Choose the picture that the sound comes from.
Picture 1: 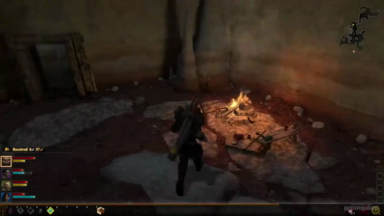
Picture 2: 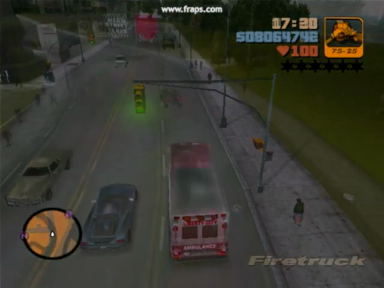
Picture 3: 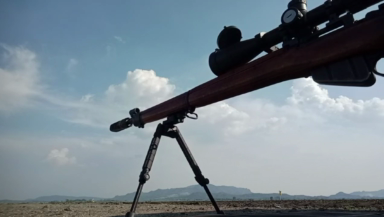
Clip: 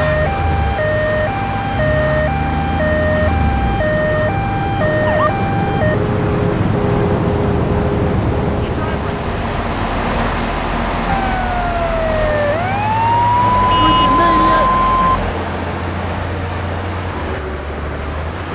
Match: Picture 2